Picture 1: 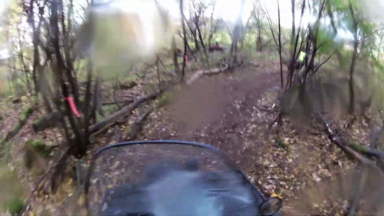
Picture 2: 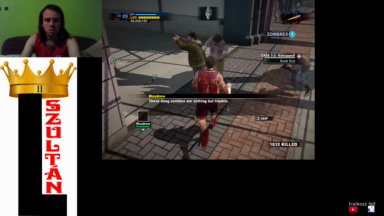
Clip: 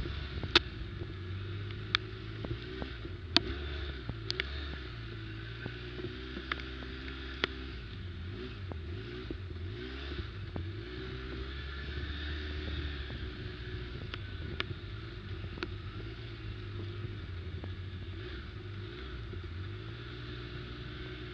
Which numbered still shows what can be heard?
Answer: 1